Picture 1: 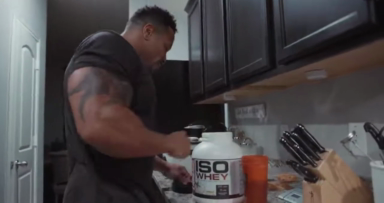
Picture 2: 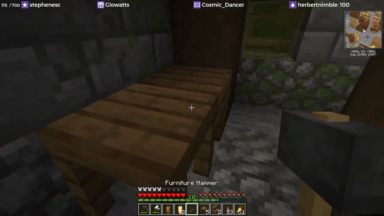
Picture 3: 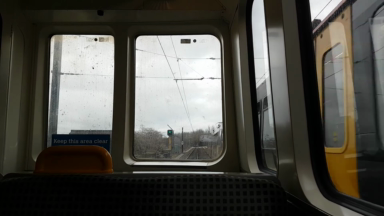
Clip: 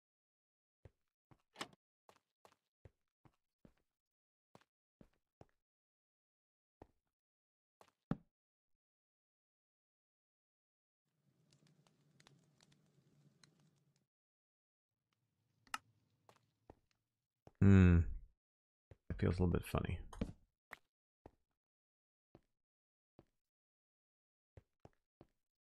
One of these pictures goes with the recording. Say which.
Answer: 2